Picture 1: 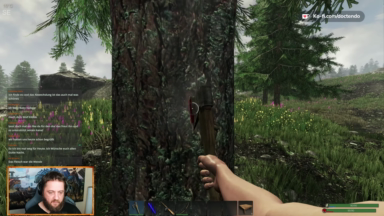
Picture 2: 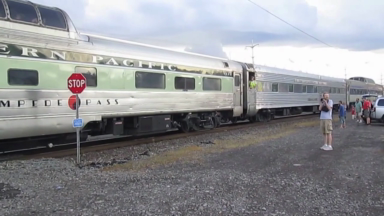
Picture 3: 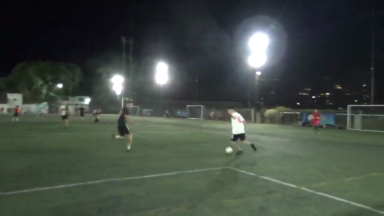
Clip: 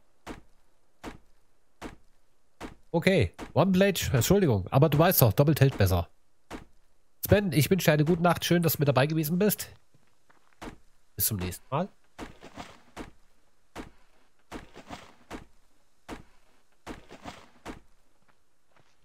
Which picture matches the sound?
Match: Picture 1